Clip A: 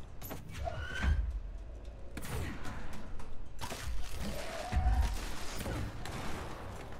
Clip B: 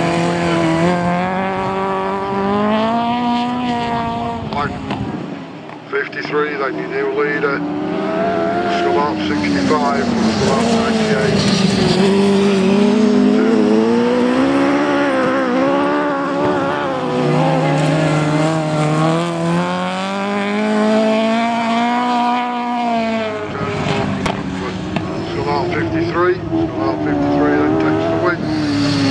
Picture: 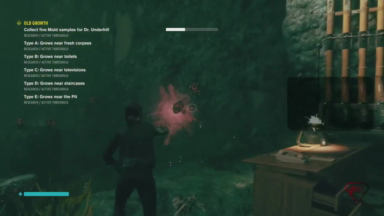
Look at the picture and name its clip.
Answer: A